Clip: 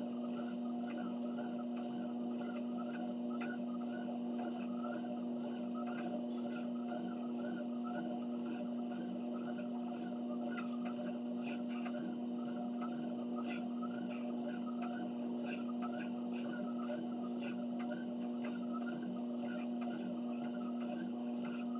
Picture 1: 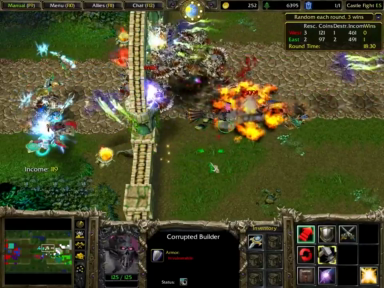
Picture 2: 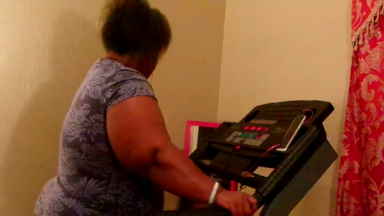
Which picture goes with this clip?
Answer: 2